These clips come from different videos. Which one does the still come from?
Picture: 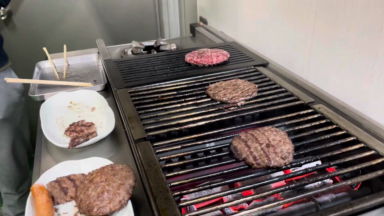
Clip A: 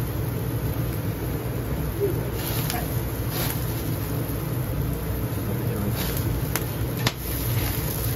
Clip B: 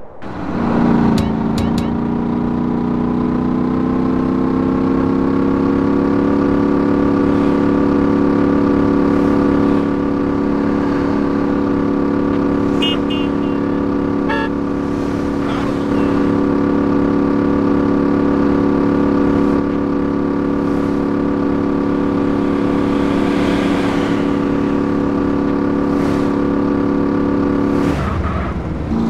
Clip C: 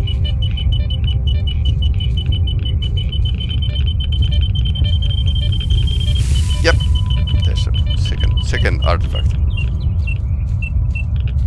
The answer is A